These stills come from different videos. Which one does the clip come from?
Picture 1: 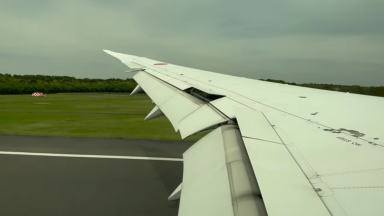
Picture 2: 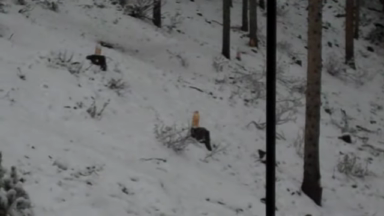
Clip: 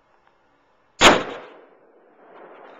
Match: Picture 2